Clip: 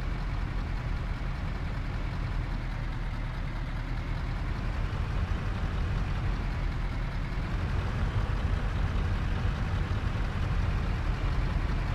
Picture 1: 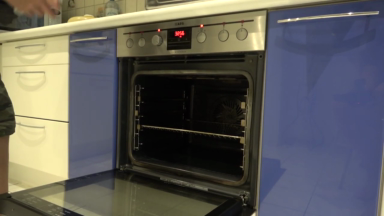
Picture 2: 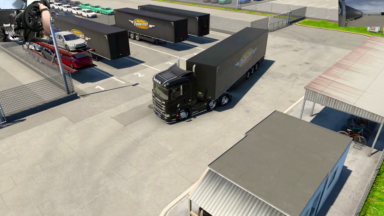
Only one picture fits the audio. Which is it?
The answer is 2